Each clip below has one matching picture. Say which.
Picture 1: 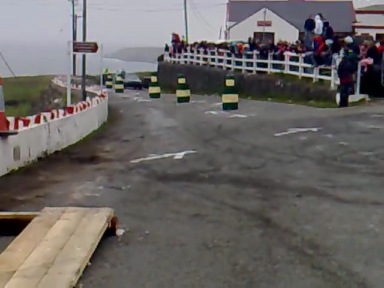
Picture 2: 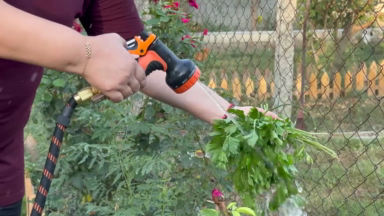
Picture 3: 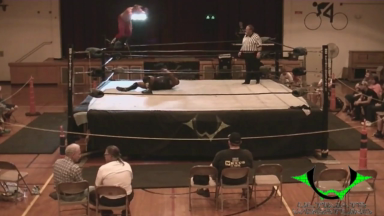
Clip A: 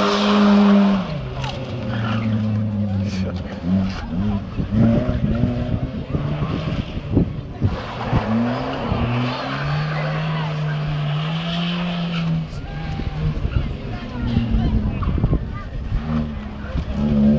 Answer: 1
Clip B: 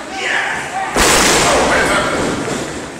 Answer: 3